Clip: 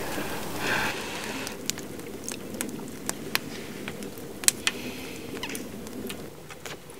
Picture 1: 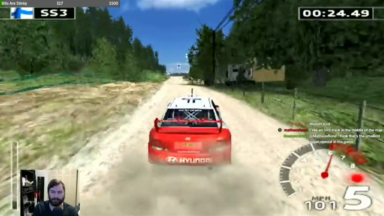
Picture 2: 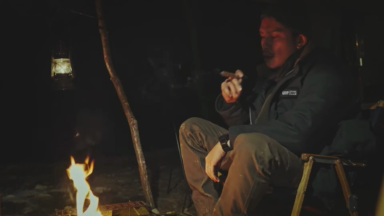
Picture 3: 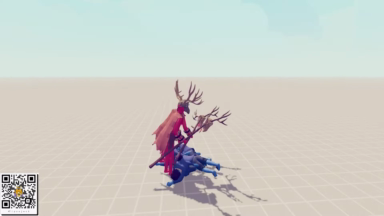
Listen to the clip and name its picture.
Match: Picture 2